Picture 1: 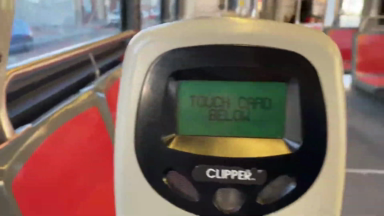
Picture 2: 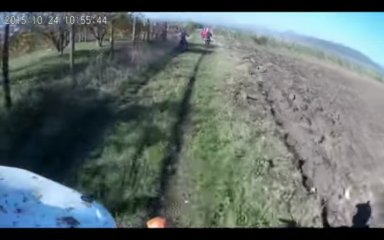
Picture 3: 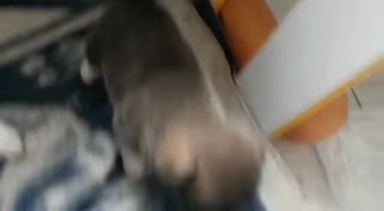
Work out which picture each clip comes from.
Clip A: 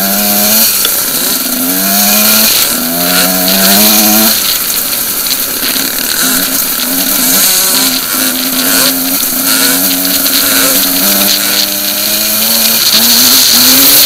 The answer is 2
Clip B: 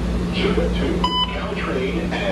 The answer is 1